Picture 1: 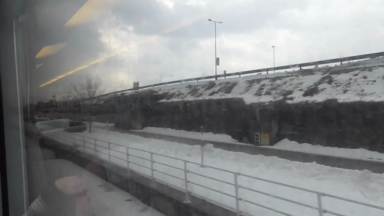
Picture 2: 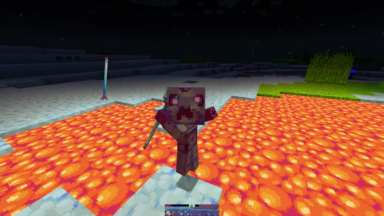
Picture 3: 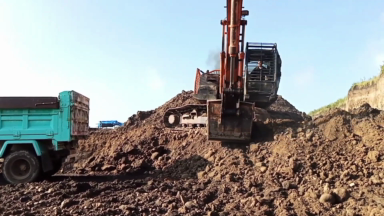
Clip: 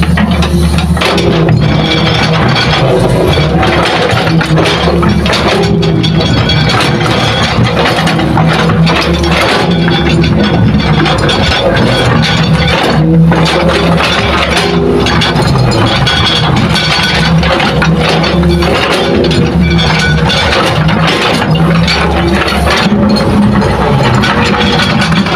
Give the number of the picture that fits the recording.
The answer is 3